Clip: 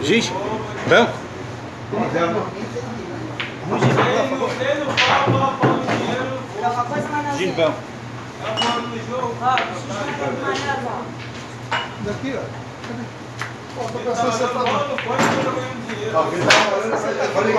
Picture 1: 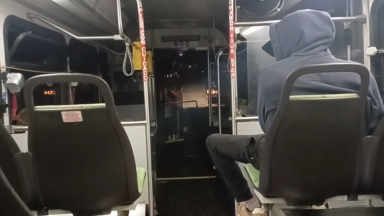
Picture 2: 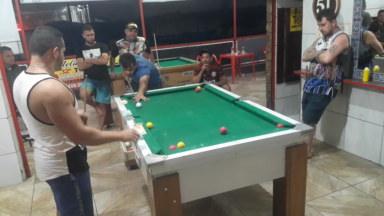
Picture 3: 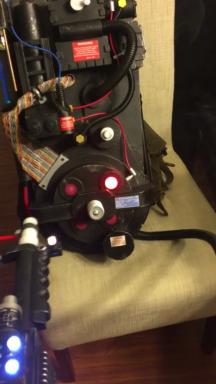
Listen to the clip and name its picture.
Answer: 2